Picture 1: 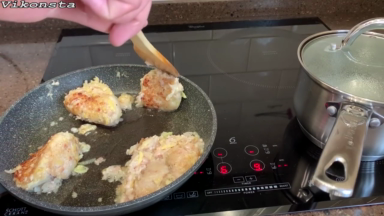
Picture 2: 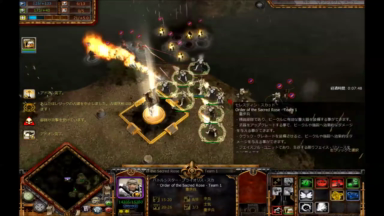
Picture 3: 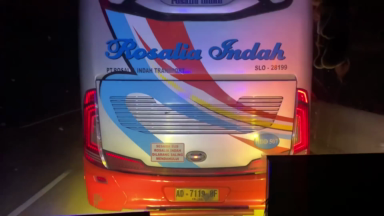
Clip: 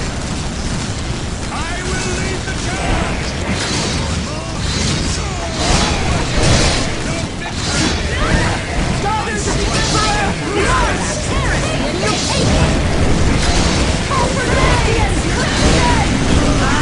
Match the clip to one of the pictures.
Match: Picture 2